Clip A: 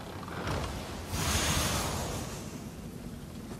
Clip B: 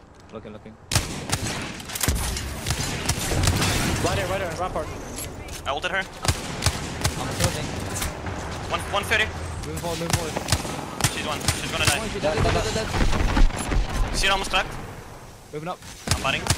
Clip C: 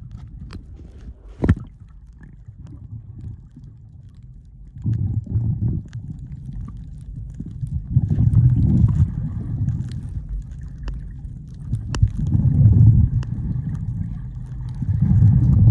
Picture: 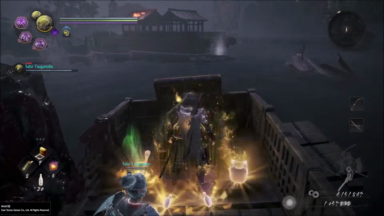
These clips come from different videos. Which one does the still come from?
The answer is A